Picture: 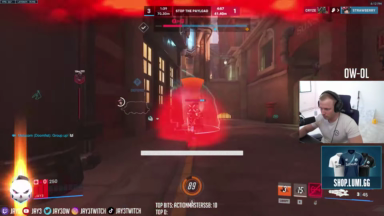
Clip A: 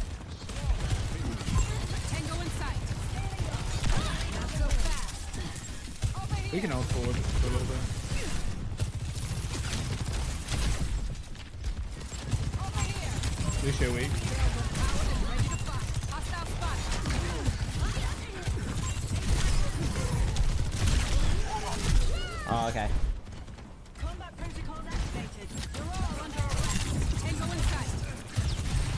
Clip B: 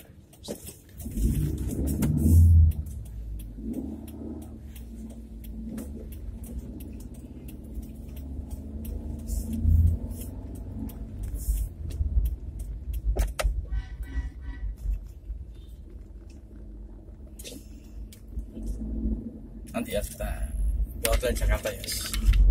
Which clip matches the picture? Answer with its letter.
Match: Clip A